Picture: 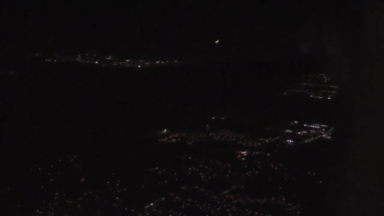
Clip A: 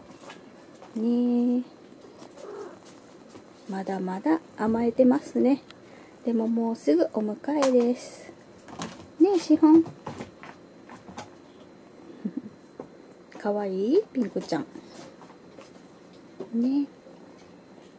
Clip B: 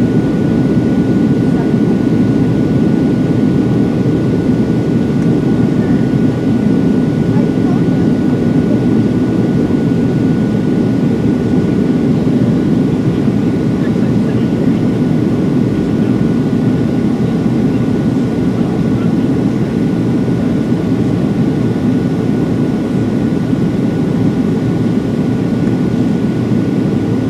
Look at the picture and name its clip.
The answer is B